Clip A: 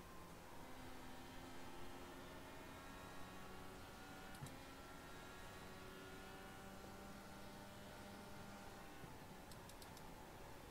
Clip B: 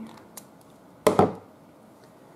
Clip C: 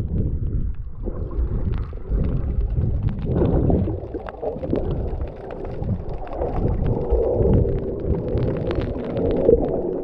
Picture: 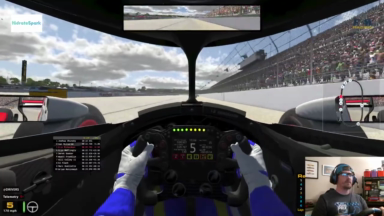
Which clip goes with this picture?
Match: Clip A